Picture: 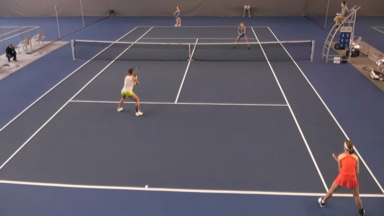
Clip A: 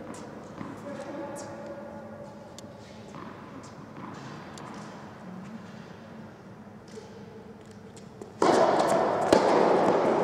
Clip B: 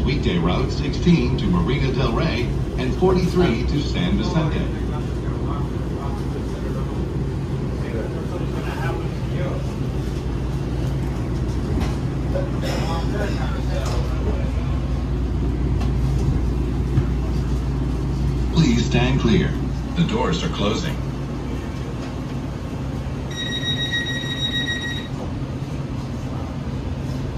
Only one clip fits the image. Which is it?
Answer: A